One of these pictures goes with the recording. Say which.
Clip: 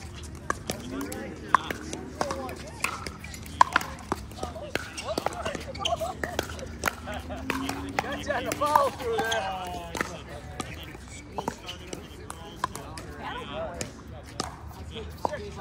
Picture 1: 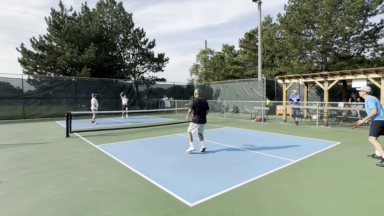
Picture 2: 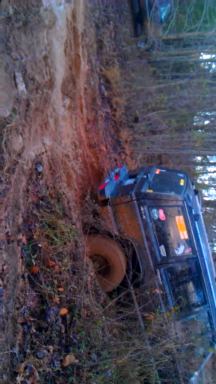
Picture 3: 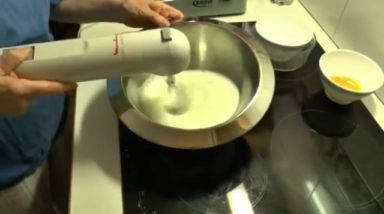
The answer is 1